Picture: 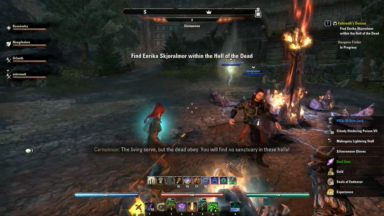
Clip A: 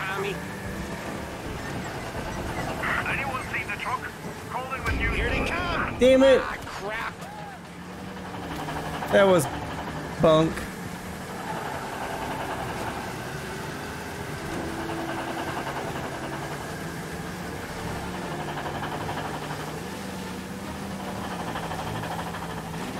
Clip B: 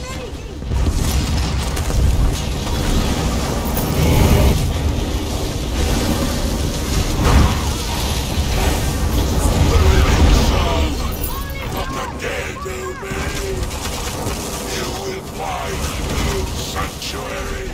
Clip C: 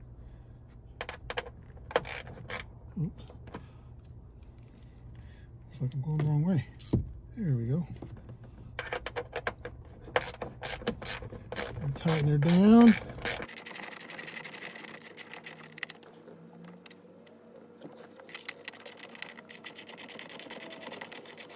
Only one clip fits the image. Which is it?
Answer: B